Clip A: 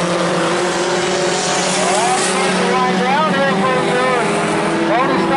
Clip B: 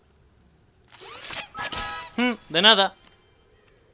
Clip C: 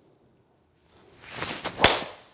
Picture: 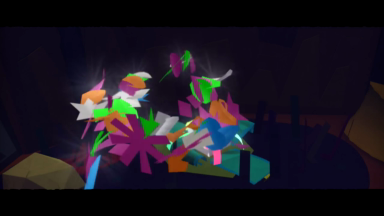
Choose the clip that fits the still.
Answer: B